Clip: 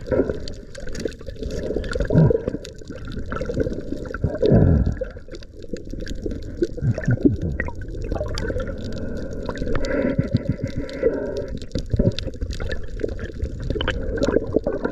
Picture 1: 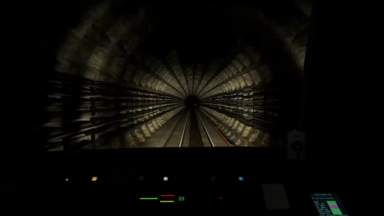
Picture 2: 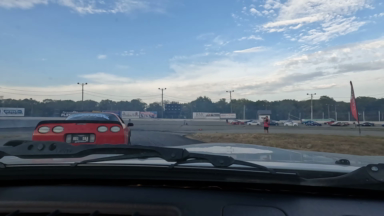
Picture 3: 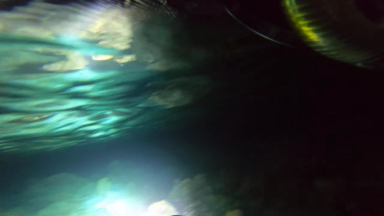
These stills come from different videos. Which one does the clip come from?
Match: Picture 3